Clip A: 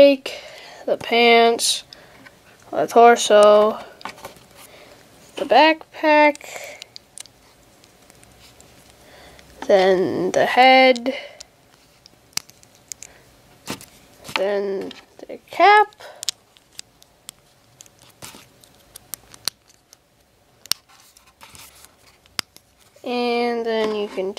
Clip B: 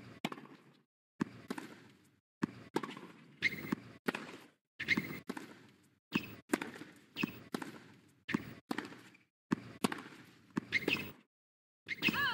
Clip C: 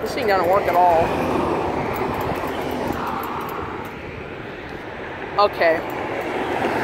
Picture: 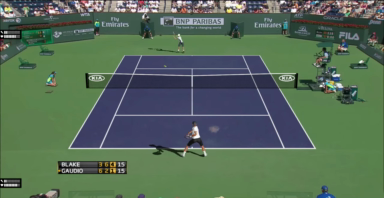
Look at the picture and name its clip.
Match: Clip B